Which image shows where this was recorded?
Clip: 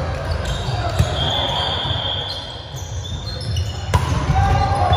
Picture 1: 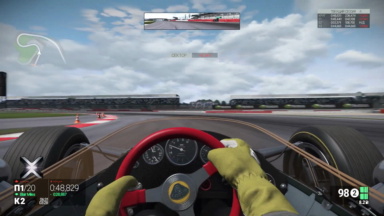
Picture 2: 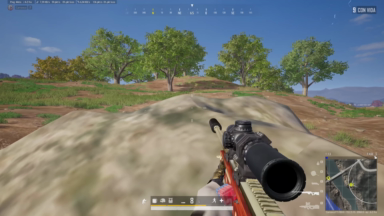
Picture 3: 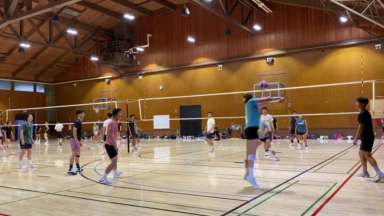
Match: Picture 3